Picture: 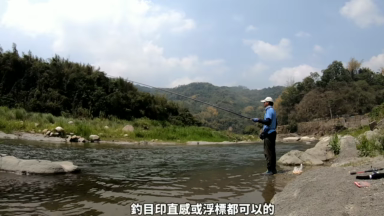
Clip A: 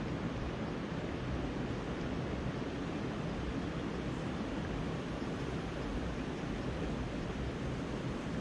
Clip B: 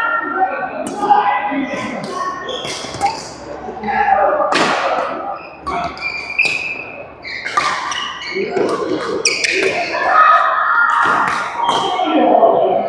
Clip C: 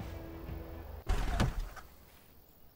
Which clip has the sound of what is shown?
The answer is A